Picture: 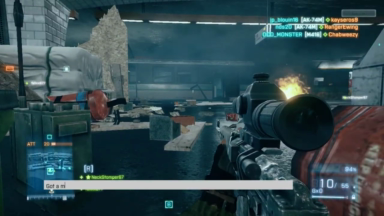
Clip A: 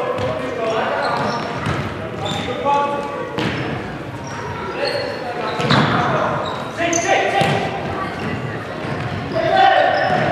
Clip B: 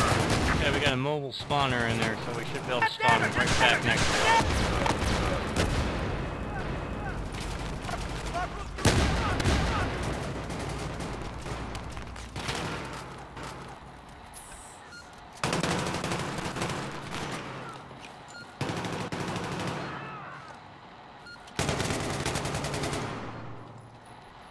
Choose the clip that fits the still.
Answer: B